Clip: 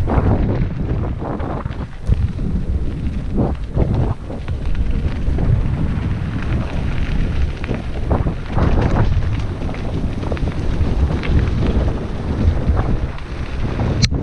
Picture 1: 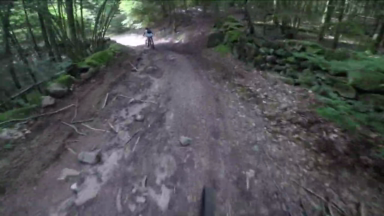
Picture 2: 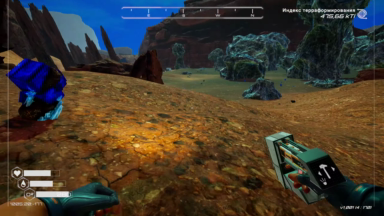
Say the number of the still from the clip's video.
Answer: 1